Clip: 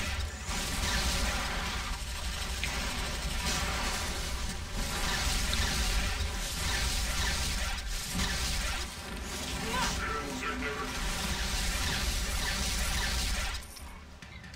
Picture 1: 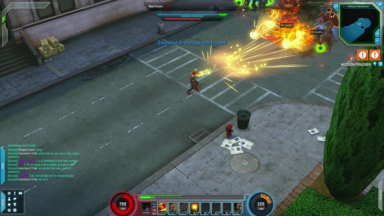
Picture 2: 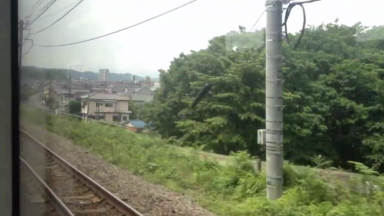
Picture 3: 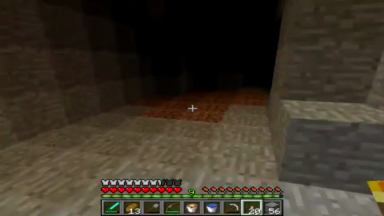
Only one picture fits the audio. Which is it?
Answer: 1